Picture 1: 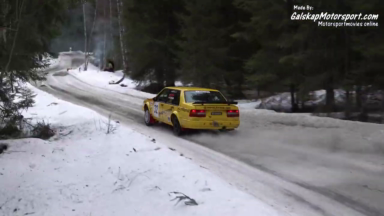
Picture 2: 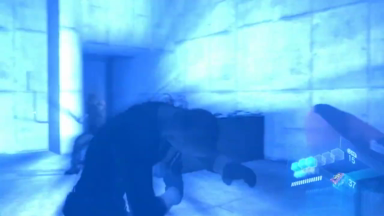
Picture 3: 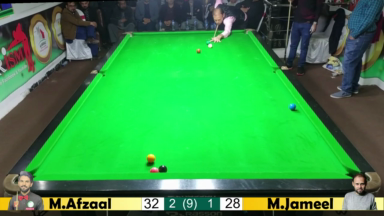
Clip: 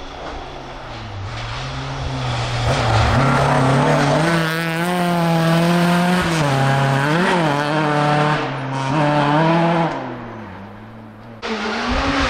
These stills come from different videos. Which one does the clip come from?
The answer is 1